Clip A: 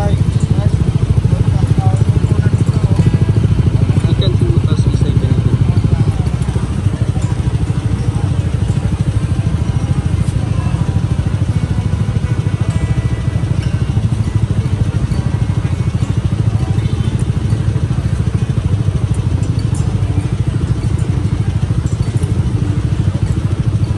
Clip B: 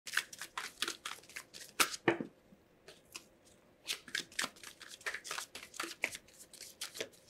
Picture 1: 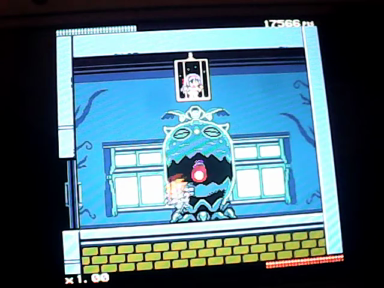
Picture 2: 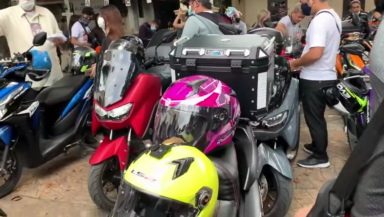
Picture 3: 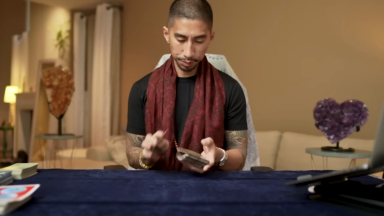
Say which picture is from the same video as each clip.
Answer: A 2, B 3